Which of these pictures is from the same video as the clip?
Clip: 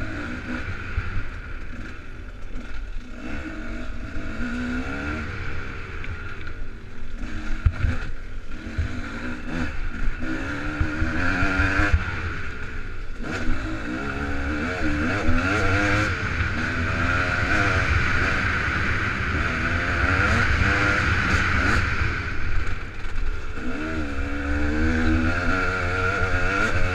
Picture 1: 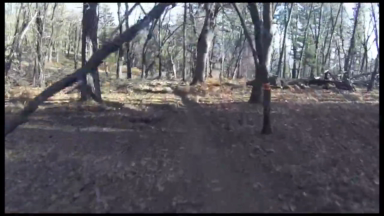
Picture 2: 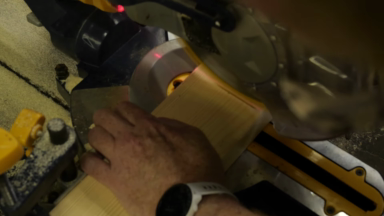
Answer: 1